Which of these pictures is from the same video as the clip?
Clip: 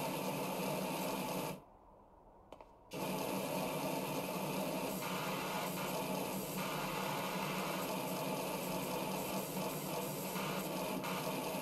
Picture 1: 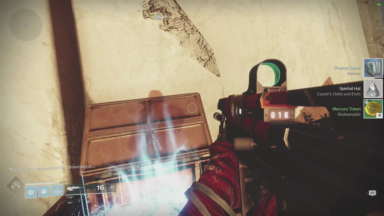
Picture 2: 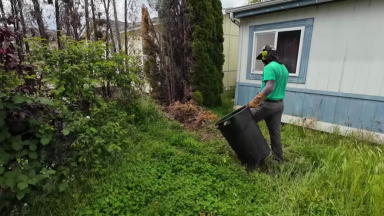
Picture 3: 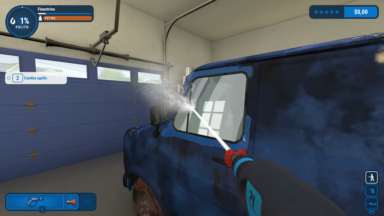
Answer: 3